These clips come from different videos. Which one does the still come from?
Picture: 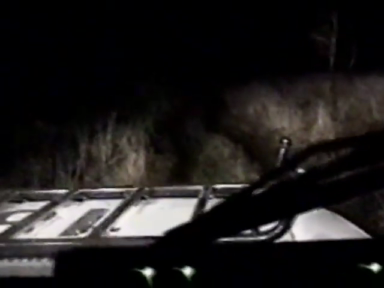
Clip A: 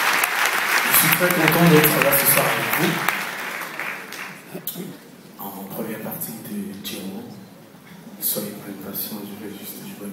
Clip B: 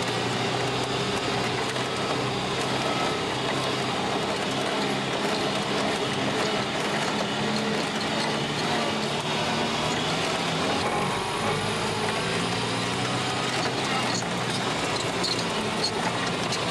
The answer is B